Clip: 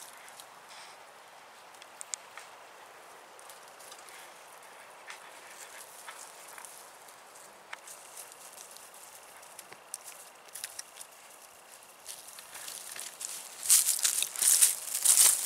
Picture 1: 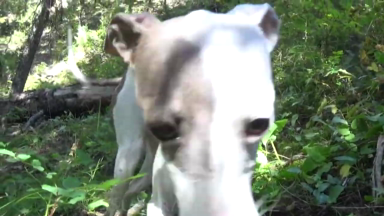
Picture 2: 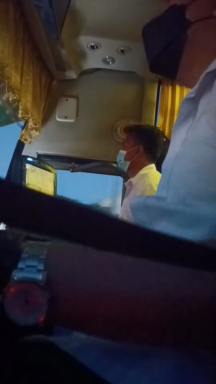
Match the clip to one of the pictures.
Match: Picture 1